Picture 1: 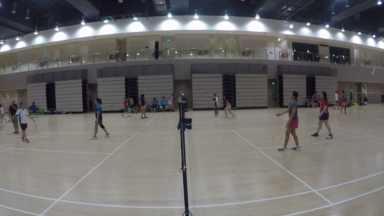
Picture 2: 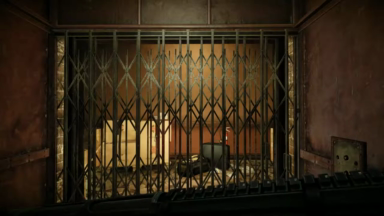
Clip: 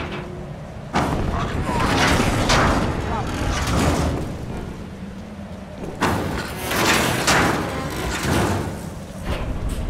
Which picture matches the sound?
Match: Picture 2